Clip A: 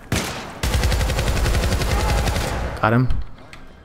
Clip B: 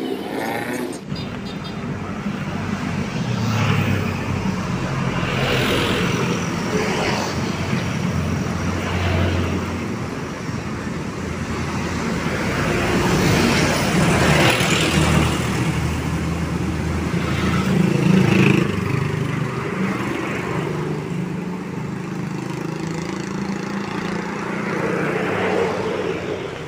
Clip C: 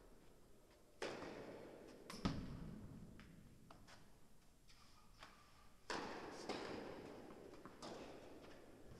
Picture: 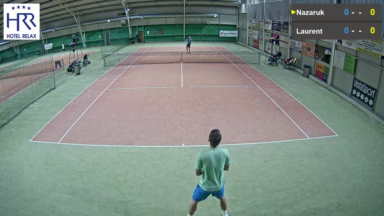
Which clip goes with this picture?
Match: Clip C